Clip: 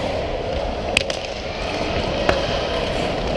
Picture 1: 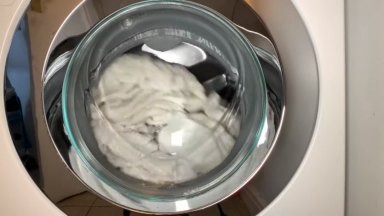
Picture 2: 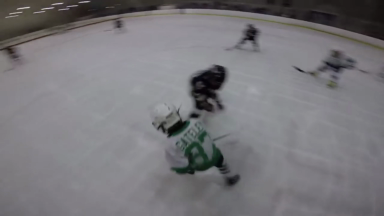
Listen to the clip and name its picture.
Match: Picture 2